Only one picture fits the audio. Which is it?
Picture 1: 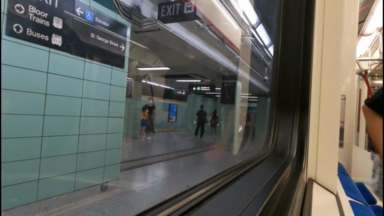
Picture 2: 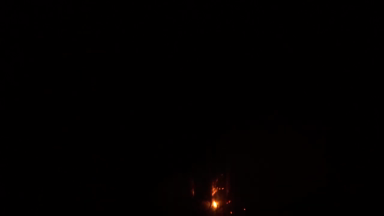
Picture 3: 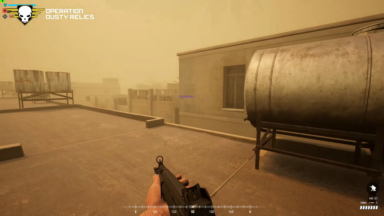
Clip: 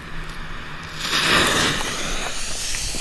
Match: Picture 2